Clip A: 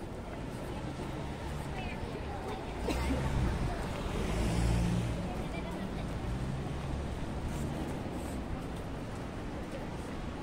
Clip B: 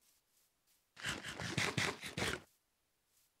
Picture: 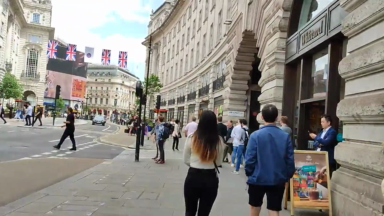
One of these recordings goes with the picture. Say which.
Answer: A